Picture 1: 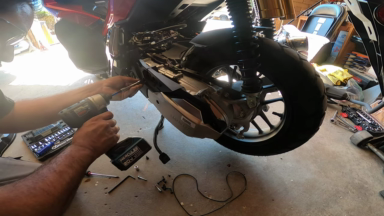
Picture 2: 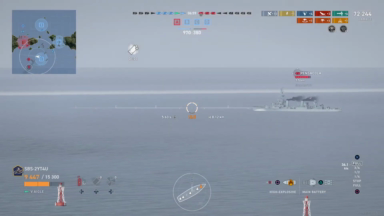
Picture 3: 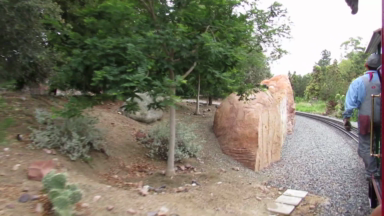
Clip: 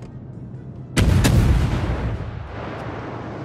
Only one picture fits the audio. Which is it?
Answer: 2